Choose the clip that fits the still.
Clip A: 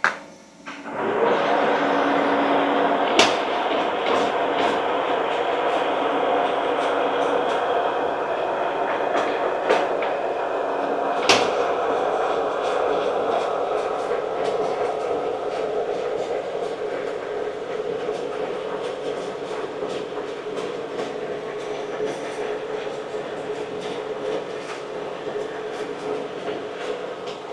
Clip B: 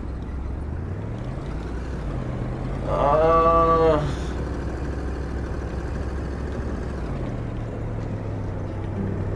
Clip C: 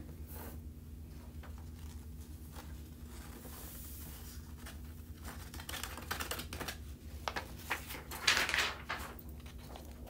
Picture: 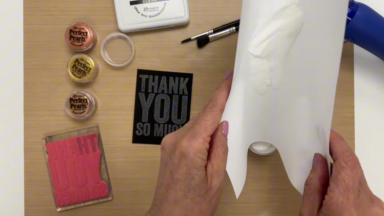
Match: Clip C